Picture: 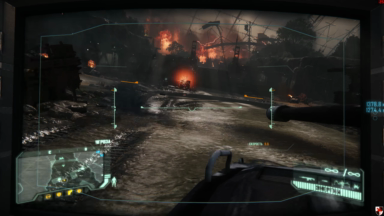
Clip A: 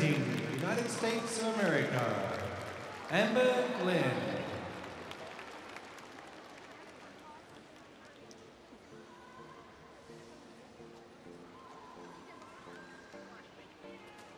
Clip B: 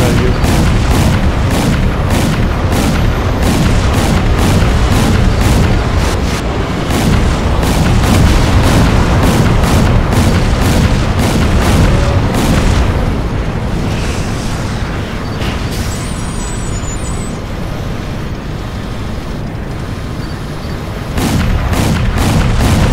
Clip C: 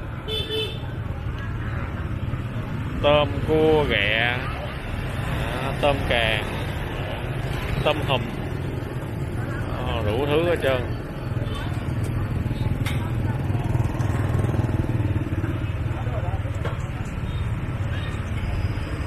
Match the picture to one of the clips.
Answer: B